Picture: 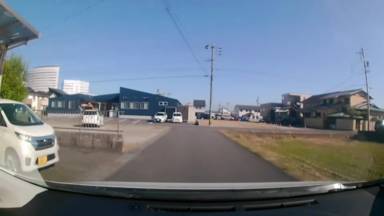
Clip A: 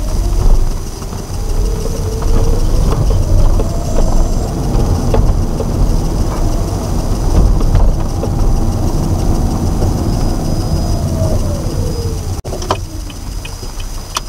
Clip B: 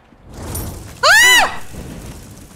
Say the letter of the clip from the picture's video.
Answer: A